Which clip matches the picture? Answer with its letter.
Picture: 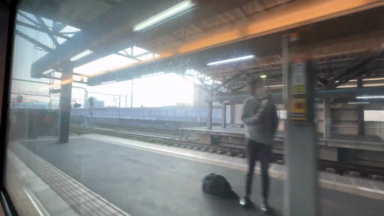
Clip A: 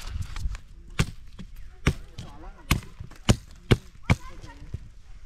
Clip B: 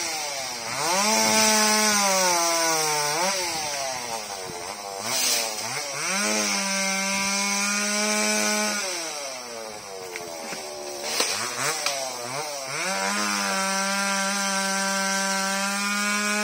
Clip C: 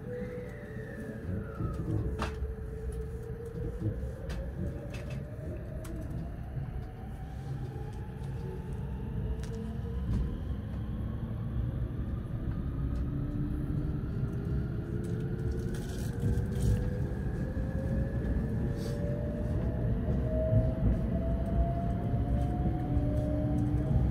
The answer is C